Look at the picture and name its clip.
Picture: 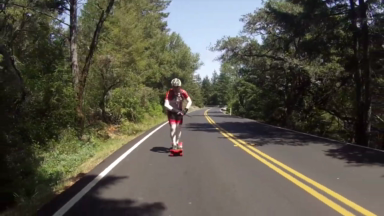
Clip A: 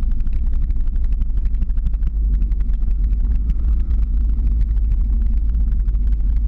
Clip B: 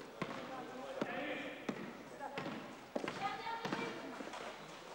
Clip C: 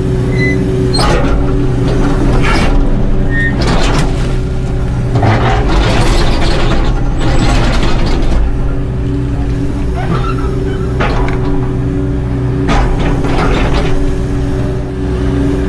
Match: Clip A